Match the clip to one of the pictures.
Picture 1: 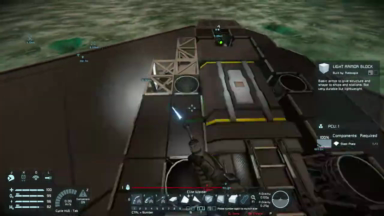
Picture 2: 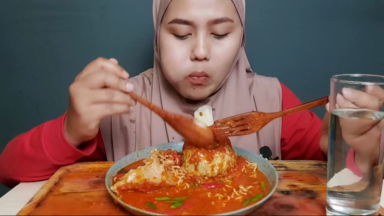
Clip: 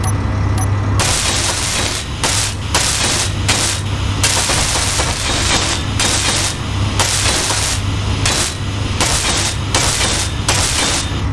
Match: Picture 1